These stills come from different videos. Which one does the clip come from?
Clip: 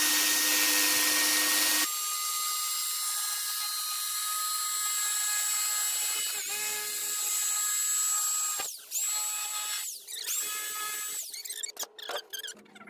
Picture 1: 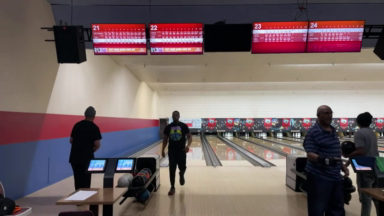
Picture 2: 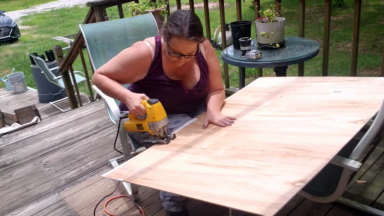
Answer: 2